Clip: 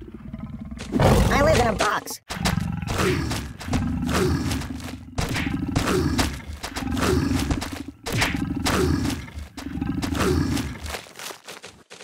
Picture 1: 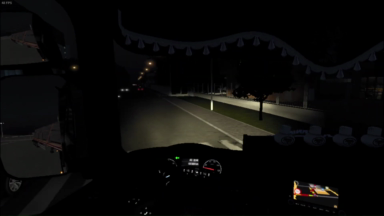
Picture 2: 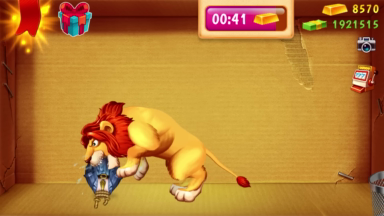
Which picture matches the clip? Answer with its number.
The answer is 2